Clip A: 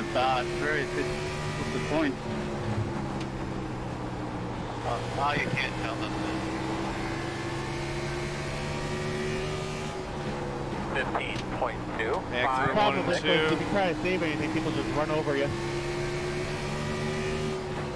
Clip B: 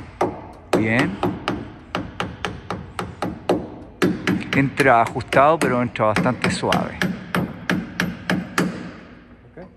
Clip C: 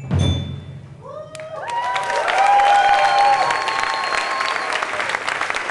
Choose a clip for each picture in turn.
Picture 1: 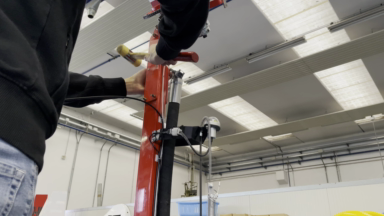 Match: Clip B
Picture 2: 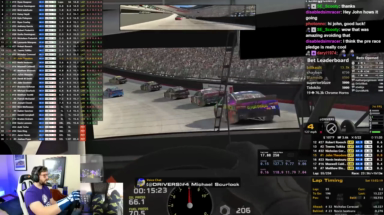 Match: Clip A